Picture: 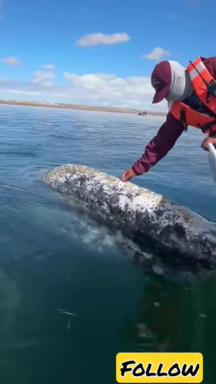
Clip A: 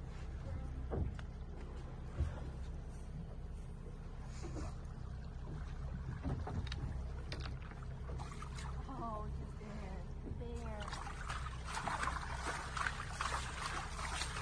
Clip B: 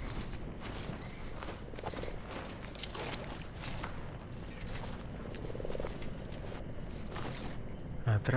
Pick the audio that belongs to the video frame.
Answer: A